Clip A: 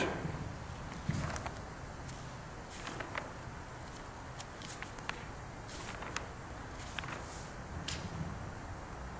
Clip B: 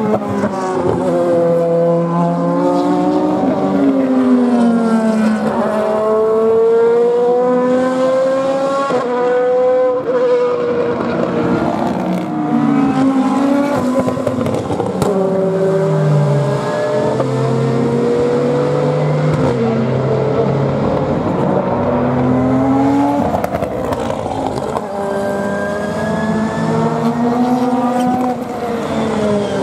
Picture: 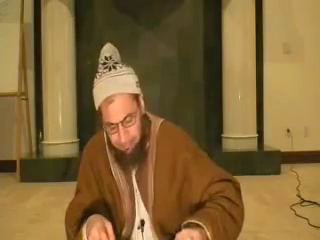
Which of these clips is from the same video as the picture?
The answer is A